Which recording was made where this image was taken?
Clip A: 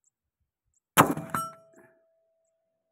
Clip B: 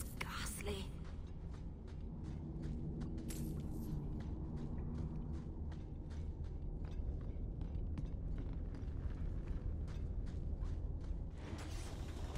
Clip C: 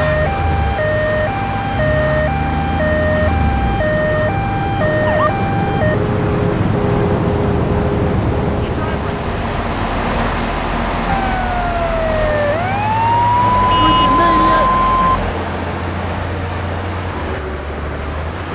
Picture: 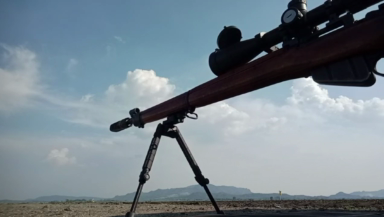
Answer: A